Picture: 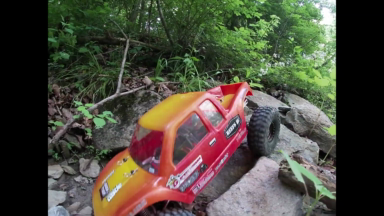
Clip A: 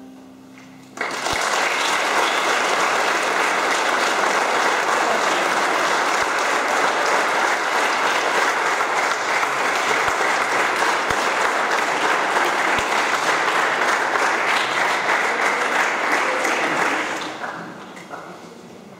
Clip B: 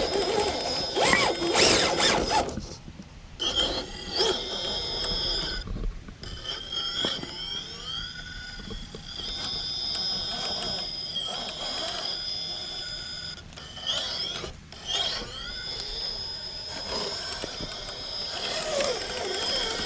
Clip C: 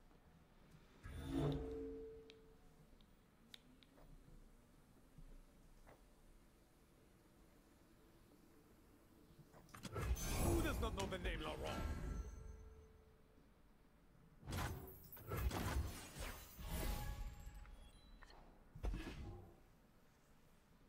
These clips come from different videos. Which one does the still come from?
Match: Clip B